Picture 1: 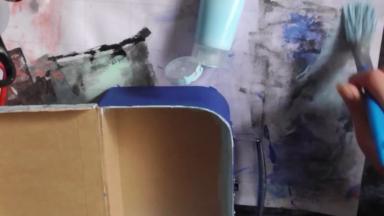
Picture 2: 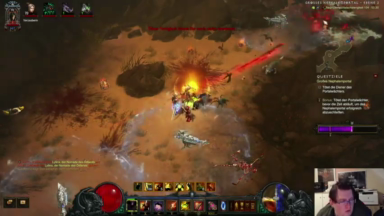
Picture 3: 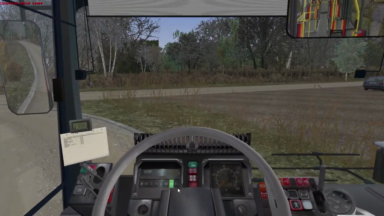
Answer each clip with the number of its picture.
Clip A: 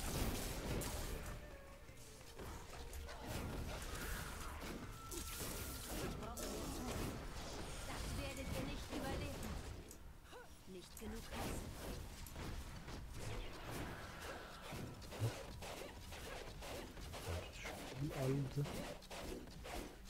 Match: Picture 2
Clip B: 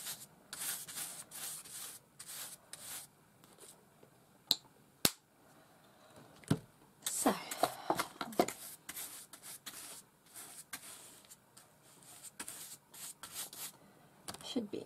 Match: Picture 1